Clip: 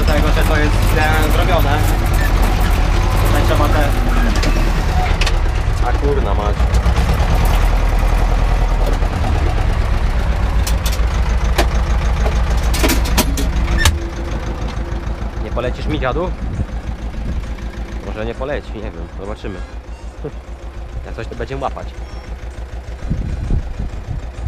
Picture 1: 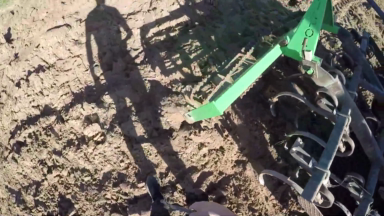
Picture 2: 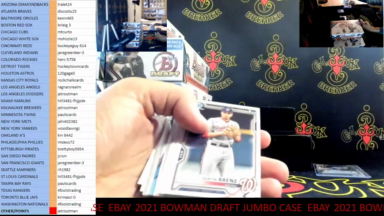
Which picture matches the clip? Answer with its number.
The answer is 1